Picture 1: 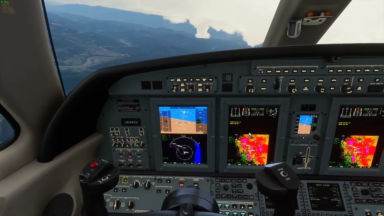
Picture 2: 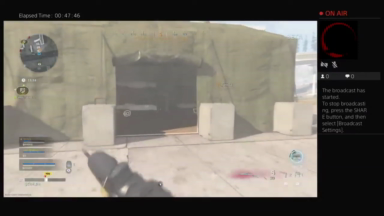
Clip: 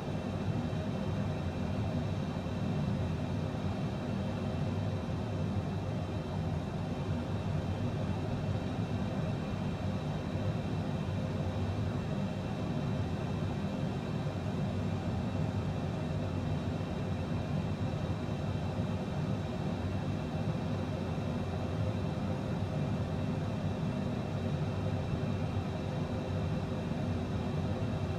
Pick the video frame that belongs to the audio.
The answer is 1